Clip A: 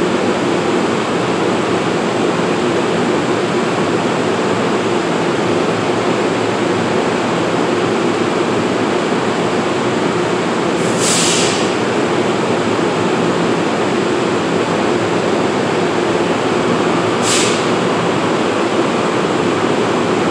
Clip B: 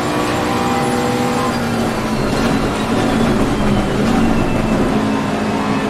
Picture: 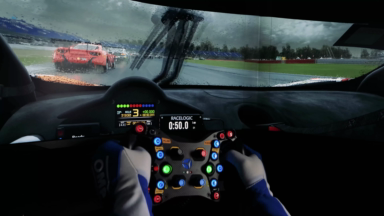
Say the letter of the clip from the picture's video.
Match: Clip B